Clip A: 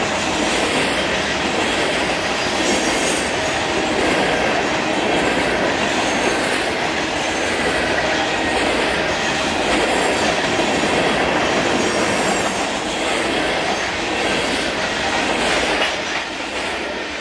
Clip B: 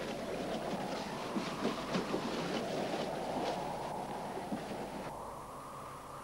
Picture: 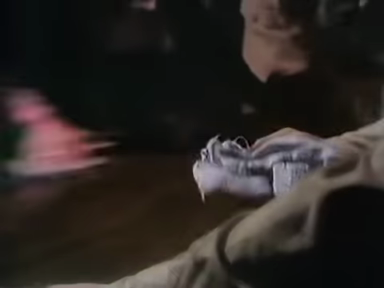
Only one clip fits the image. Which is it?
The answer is B